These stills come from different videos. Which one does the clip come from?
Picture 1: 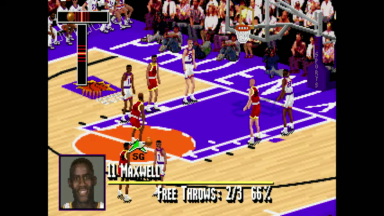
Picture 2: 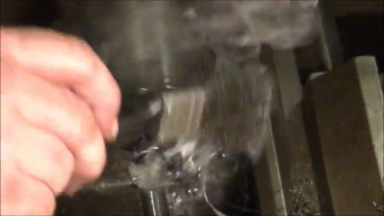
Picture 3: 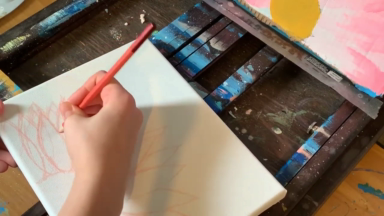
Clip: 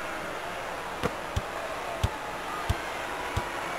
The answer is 1